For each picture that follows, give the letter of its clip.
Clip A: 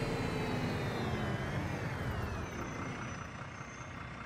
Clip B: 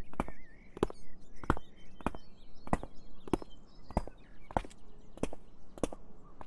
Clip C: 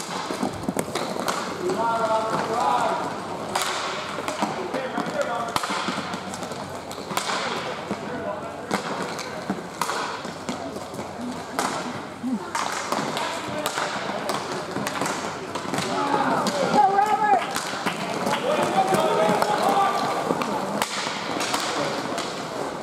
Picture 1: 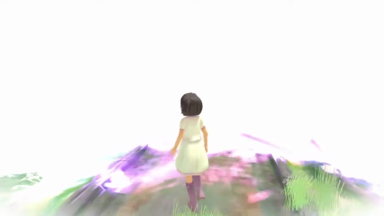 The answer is B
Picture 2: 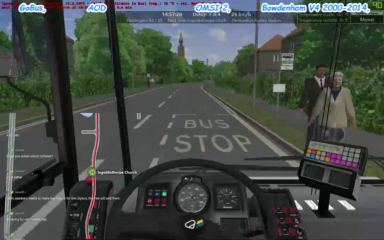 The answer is A